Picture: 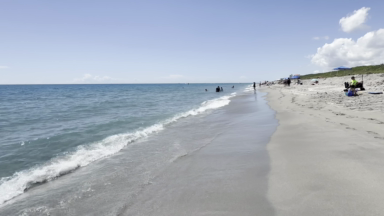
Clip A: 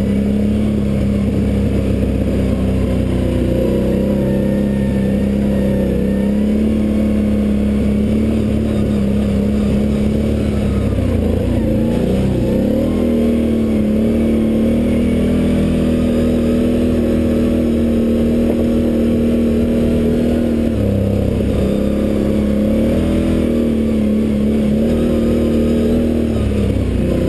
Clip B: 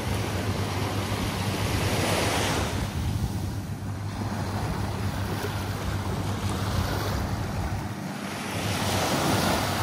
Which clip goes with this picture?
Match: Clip B